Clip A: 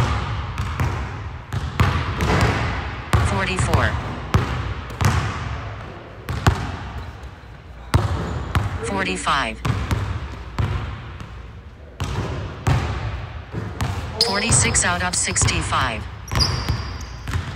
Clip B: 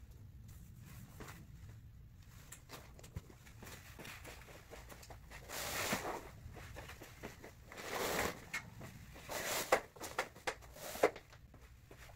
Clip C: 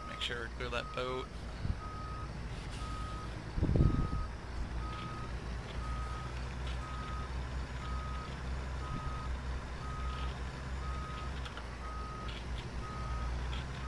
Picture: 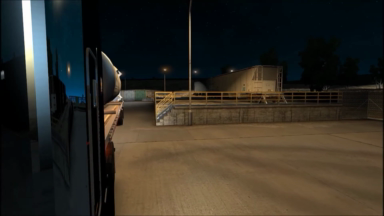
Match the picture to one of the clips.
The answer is C